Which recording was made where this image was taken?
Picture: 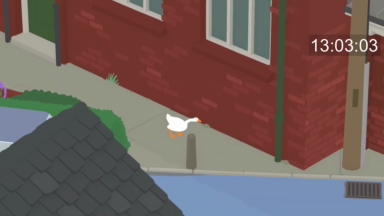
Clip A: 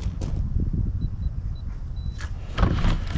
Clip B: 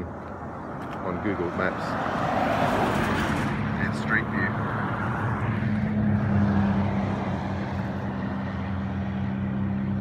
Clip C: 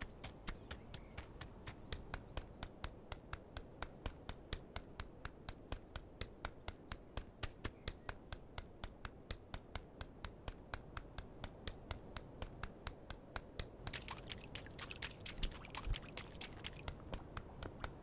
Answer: C